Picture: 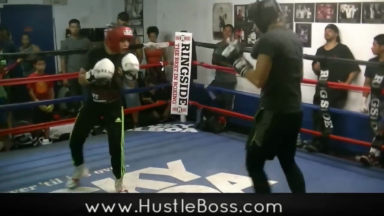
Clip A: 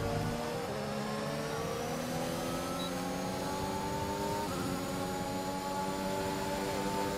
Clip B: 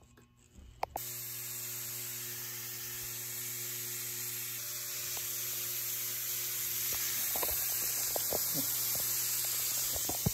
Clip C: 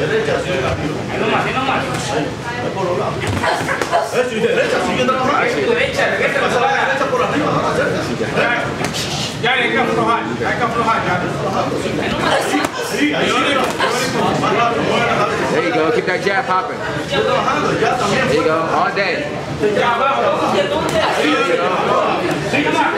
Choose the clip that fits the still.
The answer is C